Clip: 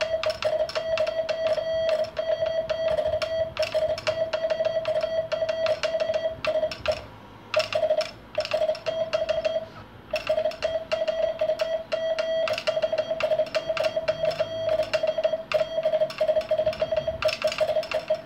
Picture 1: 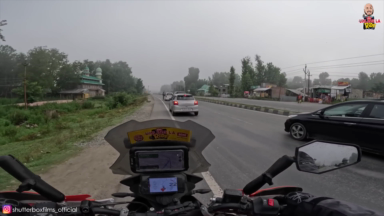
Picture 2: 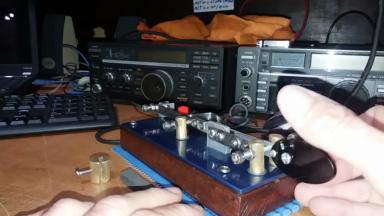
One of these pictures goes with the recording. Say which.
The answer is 2